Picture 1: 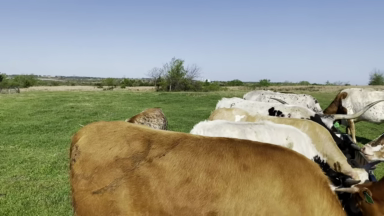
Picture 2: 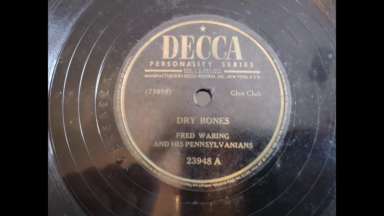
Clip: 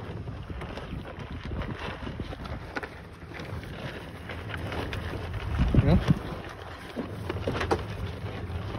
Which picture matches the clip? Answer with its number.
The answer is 1